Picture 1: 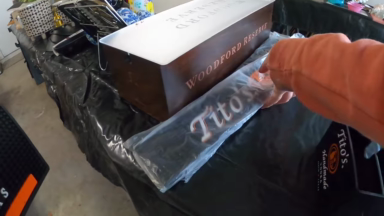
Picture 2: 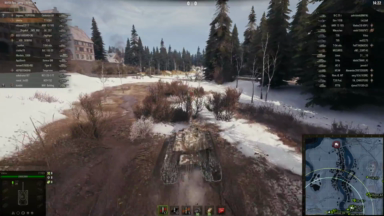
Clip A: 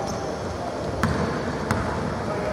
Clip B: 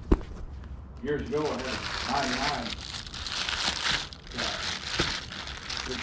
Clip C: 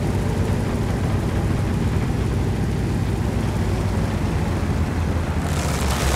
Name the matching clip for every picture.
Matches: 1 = B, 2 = C